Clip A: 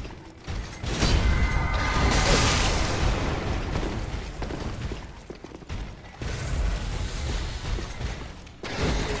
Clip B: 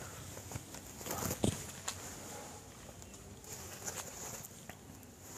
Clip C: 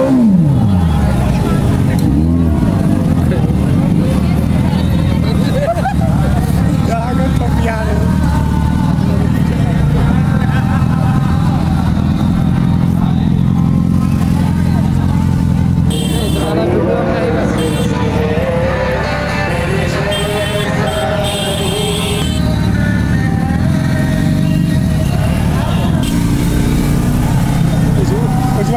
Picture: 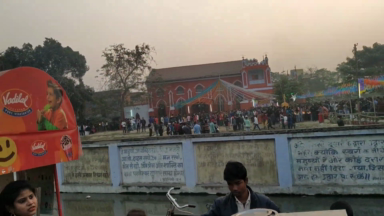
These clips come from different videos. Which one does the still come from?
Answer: C